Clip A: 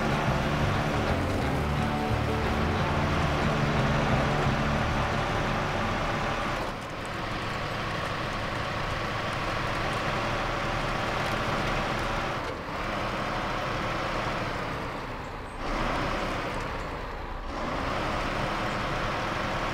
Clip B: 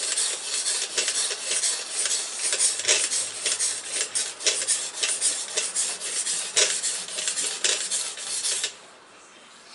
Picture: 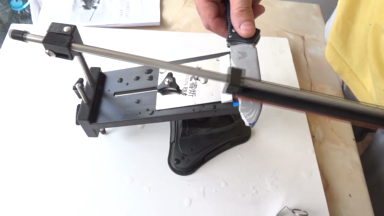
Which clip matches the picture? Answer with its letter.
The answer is B